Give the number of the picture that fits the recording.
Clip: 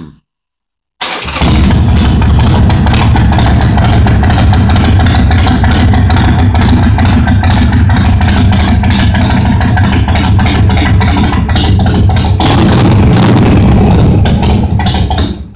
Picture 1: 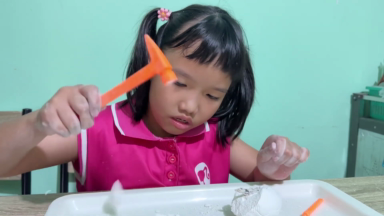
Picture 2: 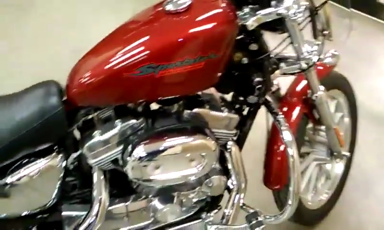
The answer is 2